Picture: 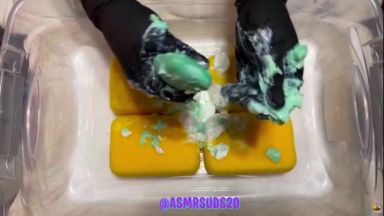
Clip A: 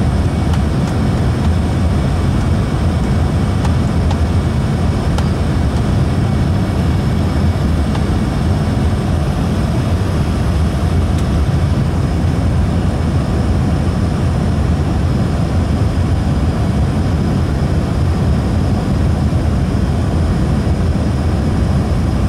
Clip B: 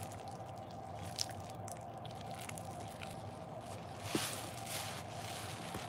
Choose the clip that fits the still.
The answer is B